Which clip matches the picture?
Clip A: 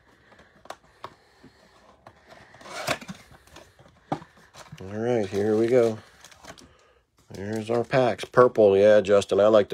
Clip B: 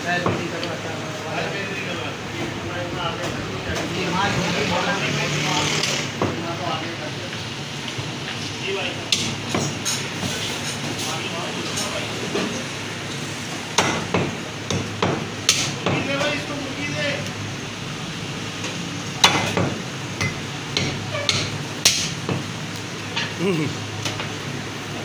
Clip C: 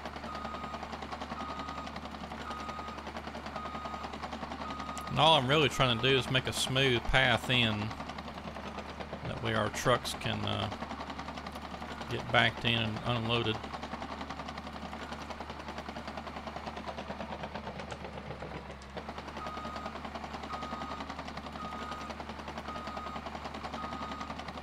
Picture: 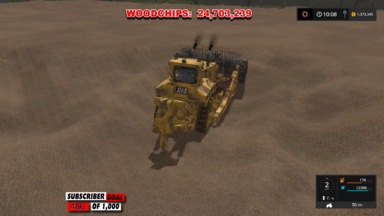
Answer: C